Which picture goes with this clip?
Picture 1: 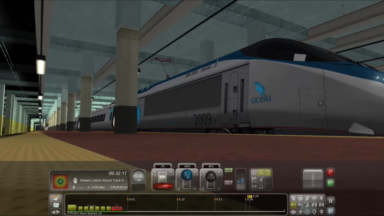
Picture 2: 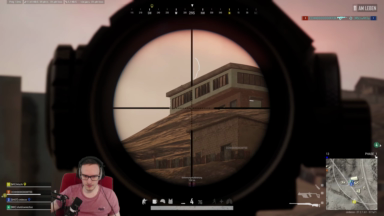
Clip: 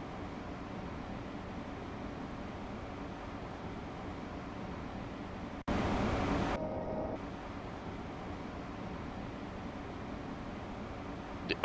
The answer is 1